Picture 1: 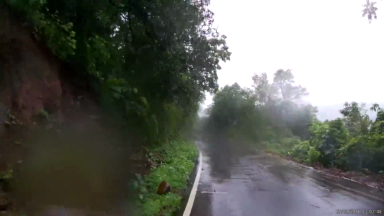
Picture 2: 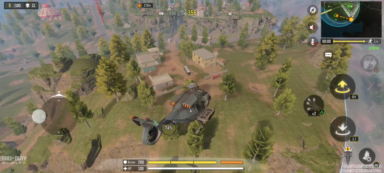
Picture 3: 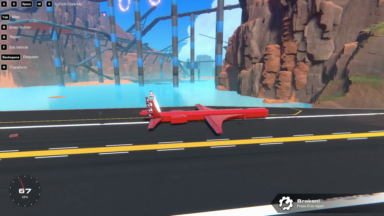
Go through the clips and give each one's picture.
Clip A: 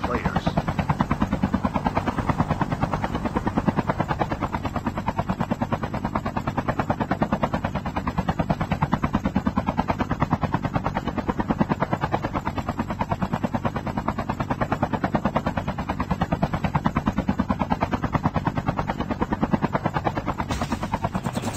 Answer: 2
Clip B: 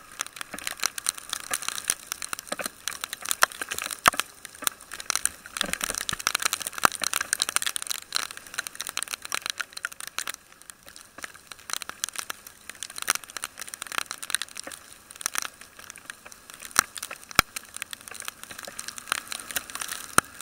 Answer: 1